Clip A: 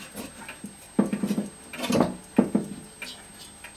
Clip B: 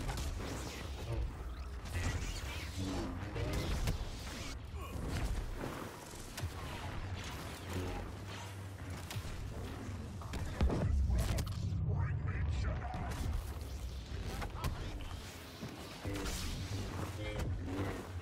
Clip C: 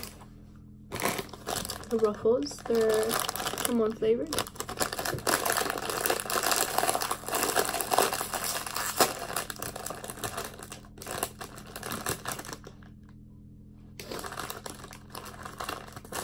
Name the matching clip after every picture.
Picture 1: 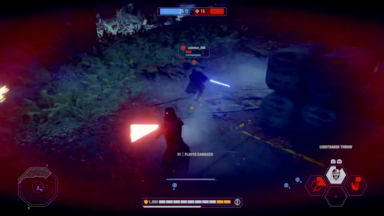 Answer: B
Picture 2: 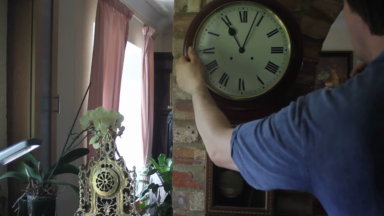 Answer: A